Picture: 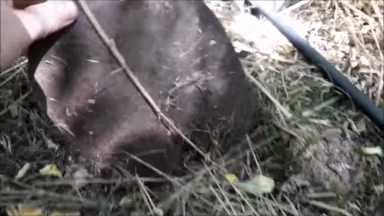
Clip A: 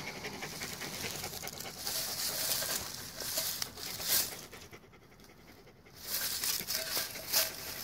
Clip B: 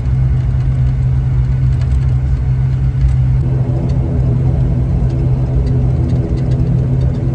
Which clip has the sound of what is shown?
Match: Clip A